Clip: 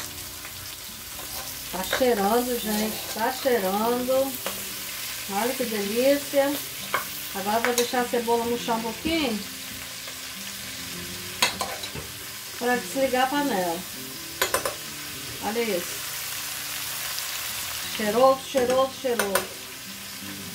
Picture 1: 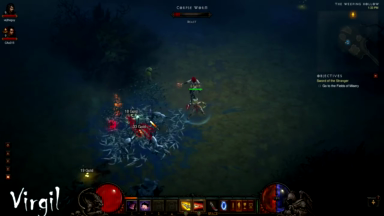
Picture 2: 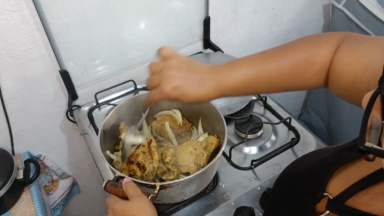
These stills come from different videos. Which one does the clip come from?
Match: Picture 2